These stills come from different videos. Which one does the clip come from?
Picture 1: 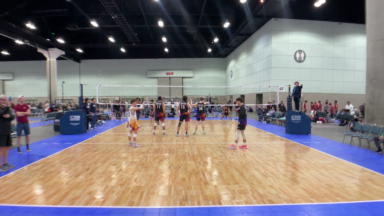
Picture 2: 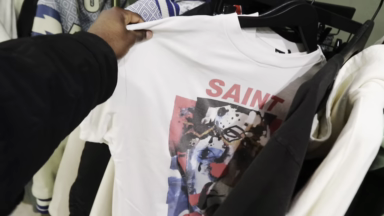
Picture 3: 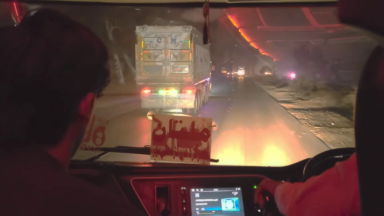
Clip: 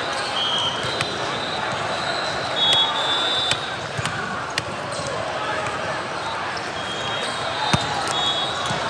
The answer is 1